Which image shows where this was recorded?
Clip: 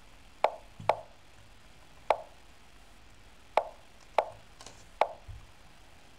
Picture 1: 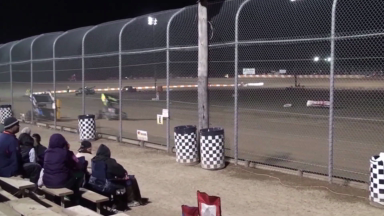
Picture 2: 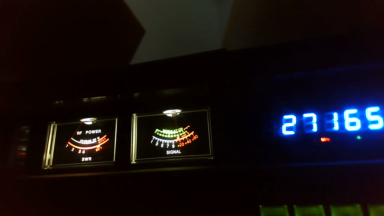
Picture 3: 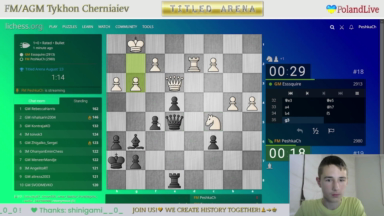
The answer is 3